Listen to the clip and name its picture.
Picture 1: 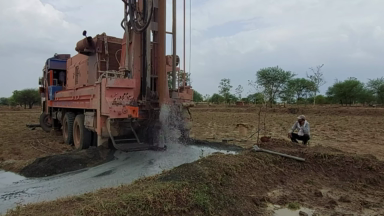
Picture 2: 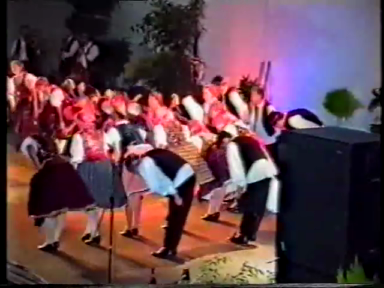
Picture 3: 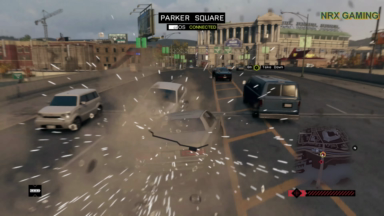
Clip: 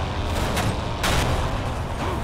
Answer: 3